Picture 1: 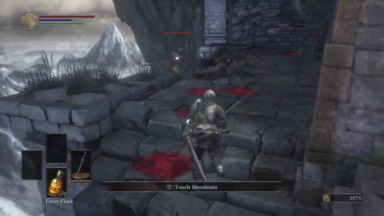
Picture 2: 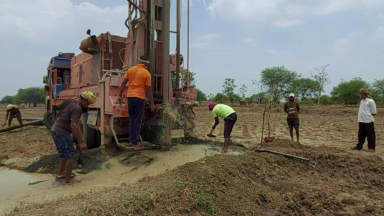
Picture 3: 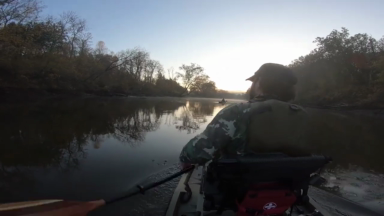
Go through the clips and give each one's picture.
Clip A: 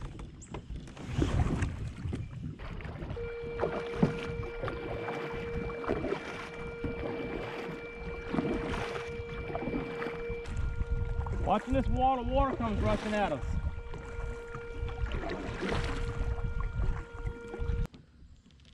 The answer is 3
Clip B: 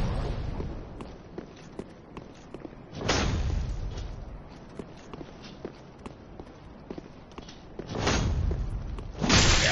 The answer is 1